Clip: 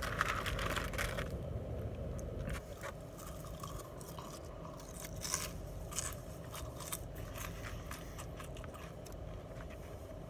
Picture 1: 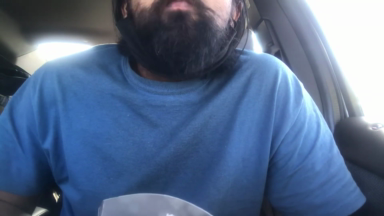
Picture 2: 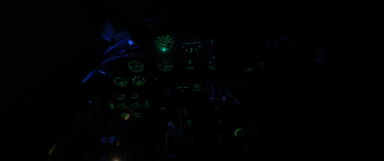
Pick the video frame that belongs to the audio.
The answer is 1